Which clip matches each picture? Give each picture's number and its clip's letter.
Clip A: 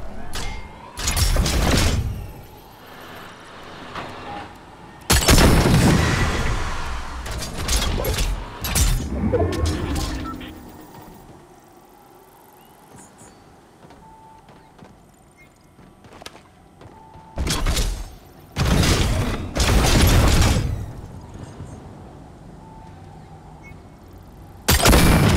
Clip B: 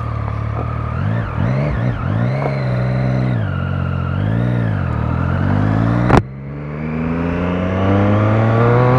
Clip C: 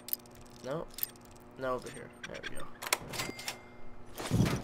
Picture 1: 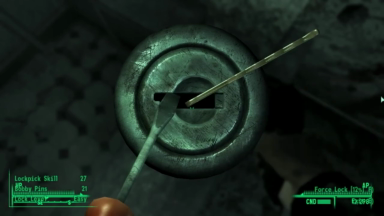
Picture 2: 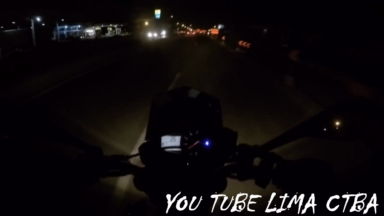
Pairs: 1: C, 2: B